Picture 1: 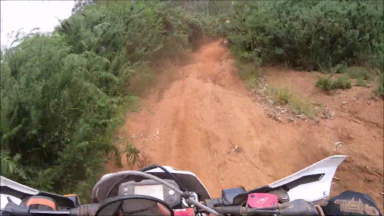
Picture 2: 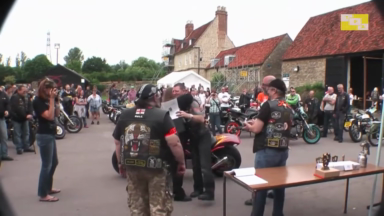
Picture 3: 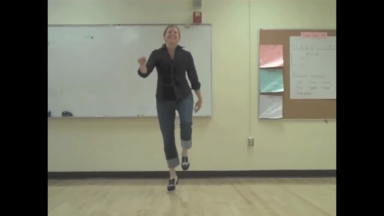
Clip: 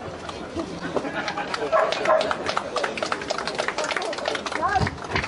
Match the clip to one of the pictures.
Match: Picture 2